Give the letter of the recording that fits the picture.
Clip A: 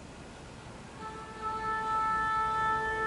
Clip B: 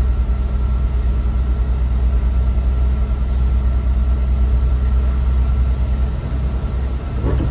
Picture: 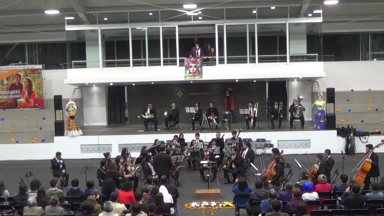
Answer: A